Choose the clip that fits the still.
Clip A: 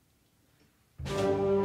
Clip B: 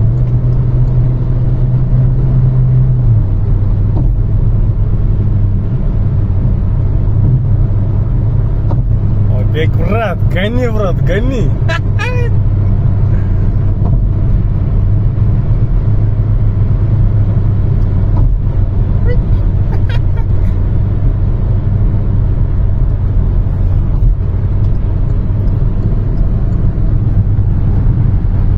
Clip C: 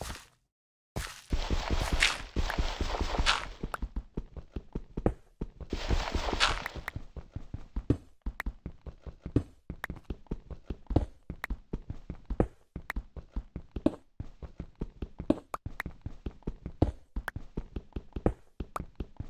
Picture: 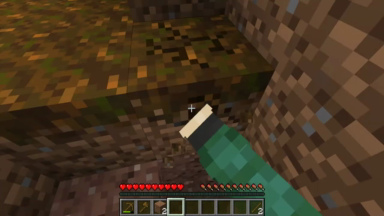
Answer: C